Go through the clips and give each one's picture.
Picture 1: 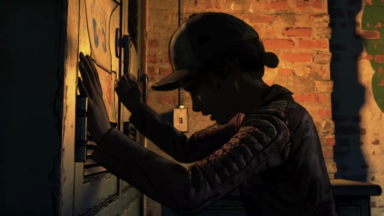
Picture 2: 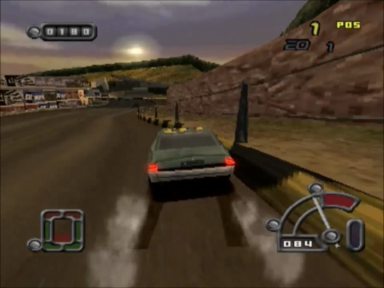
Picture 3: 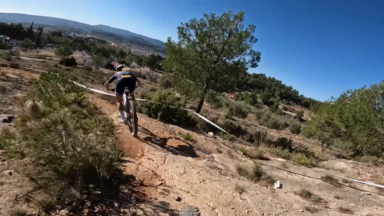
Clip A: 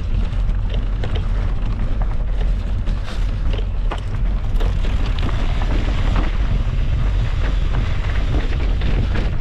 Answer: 3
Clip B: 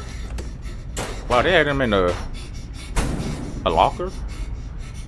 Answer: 1